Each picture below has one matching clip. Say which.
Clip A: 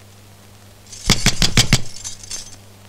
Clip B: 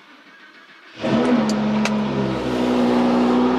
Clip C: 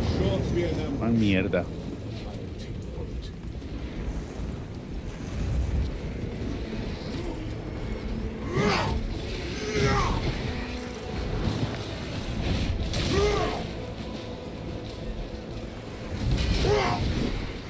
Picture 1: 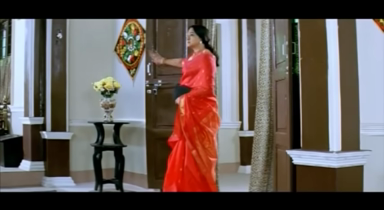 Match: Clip A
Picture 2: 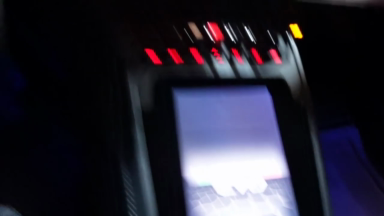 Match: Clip B